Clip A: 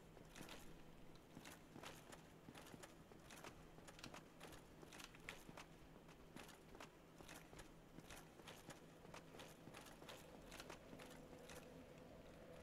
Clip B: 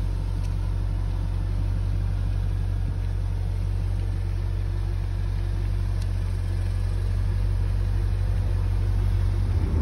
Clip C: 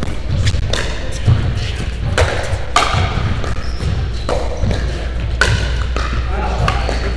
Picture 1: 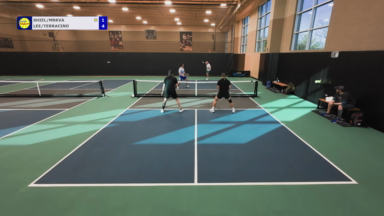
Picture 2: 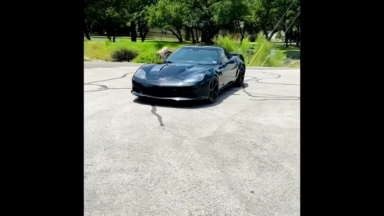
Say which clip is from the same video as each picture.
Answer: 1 C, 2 B